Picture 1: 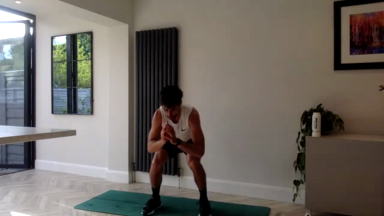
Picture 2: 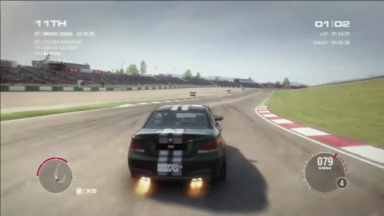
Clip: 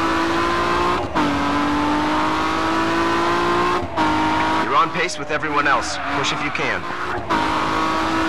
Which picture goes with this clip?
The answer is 2